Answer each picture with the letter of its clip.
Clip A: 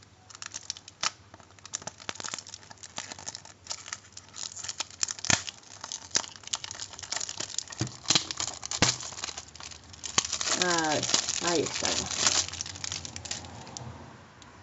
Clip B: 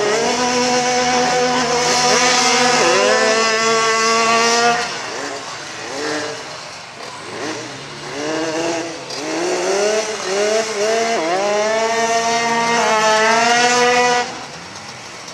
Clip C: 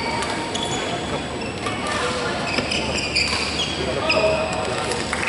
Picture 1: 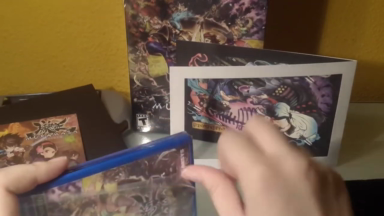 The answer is A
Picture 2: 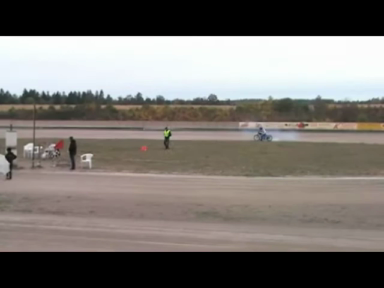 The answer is B